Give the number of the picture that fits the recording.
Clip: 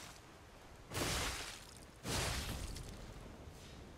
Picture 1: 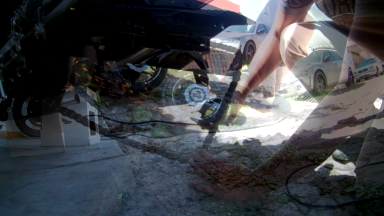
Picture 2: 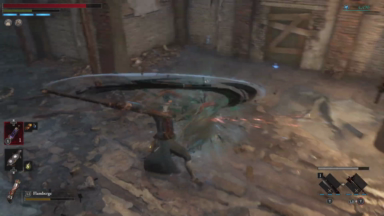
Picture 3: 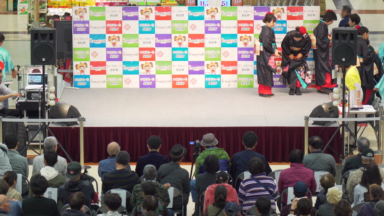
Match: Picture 2